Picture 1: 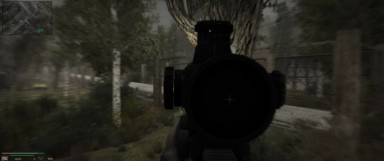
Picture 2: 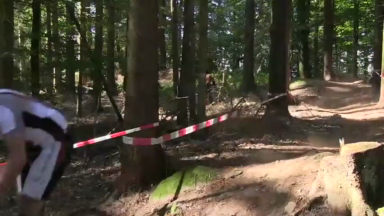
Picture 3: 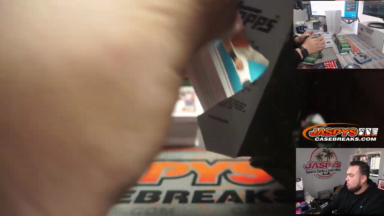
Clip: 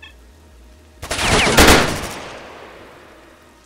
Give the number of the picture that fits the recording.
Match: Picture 1